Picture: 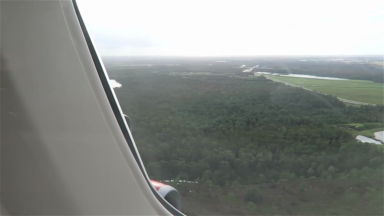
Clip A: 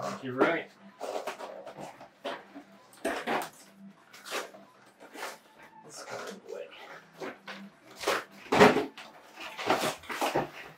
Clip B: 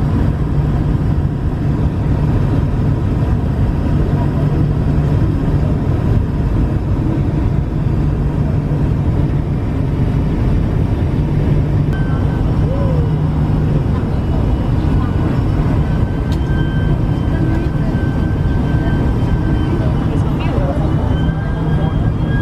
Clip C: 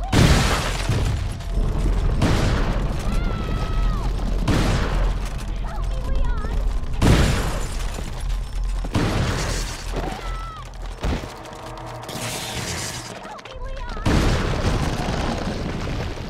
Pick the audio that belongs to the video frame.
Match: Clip B